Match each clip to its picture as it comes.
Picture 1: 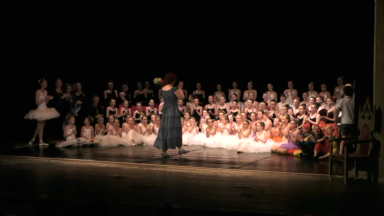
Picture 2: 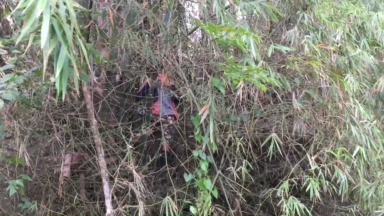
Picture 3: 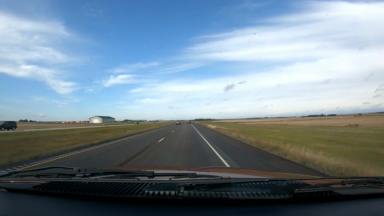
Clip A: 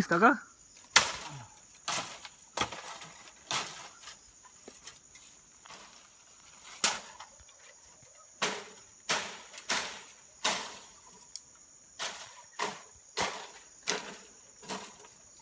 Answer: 2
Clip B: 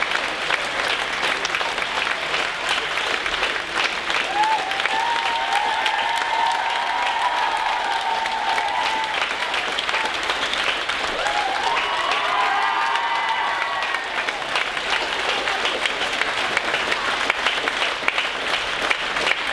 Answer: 1